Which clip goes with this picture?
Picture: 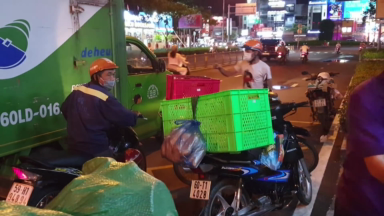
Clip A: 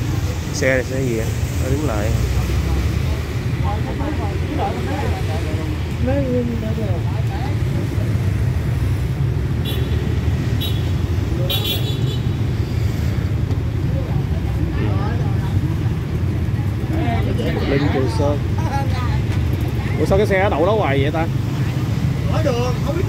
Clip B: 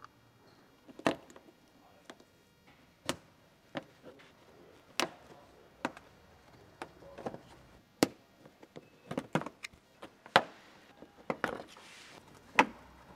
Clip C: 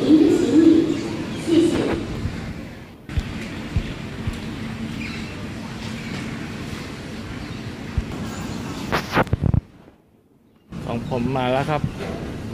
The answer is A